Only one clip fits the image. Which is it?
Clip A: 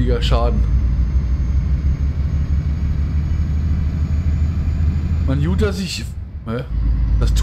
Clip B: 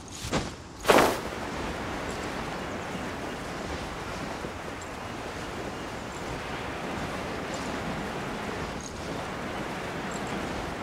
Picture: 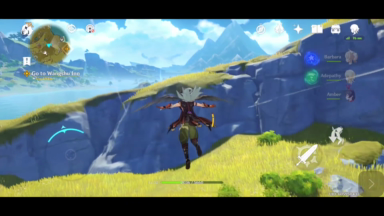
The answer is B